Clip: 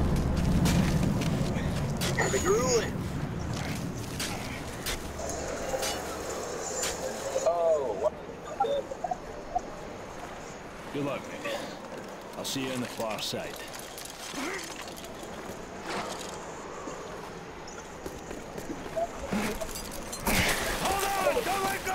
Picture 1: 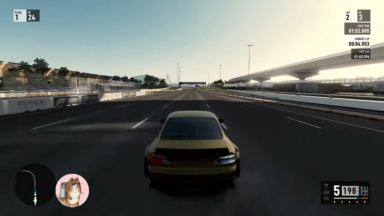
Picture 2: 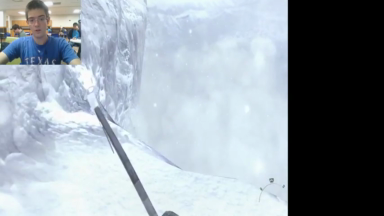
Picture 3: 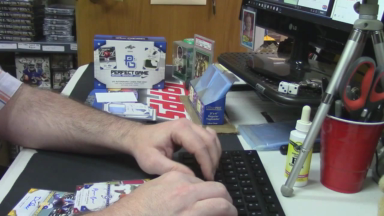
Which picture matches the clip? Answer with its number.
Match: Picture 2